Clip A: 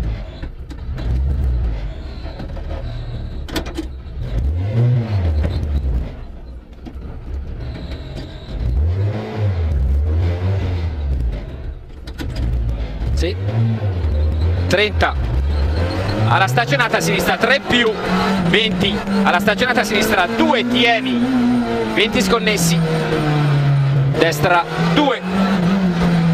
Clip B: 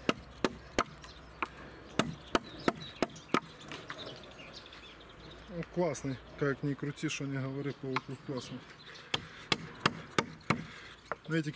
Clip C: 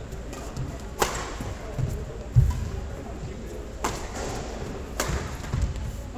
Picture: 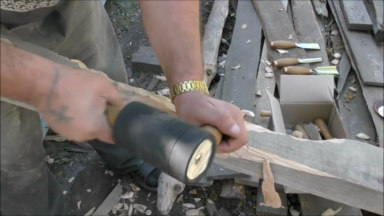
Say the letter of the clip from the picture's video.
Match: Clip B